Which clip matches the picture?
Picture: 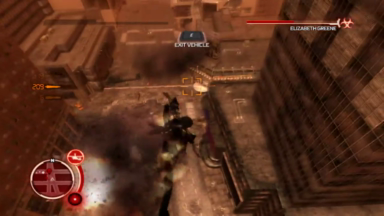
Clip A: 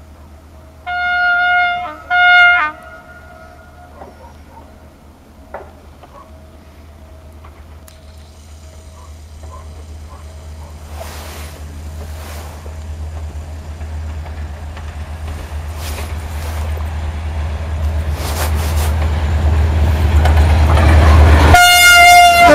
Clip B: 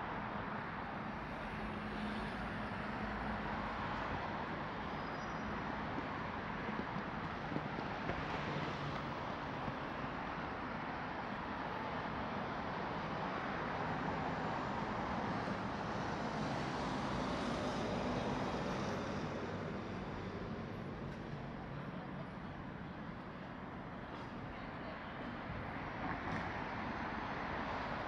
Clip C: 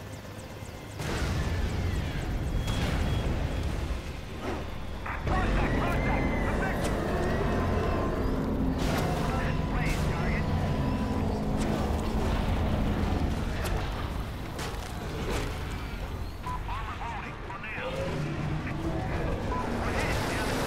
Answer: C